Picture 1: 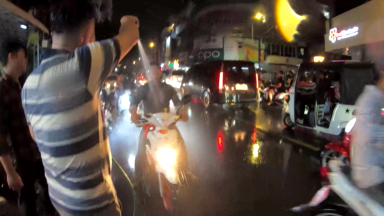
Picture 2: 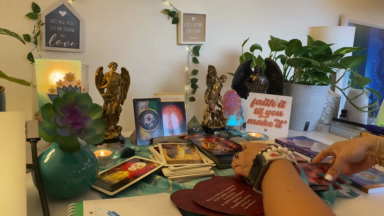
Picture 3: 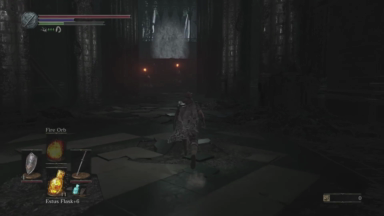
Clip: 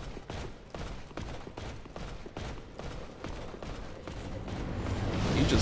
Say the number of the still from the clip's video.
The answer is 3